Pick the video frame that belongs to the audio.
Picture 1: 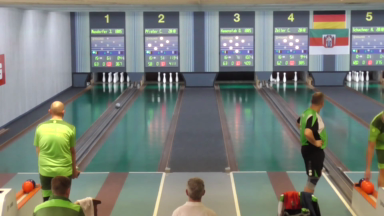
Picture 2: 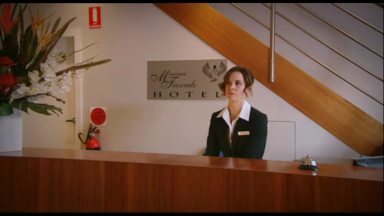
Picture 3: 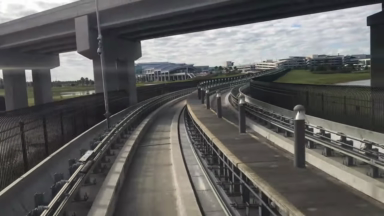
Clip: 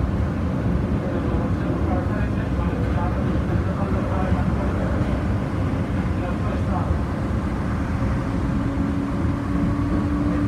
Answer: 3